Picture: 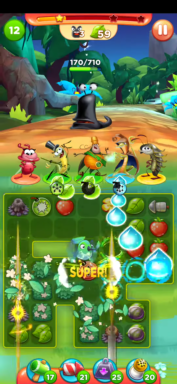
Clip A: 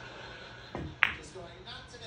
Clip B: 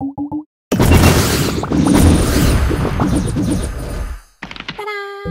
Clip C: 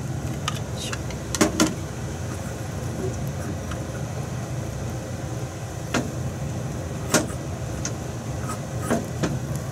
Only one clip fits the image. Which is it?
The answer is B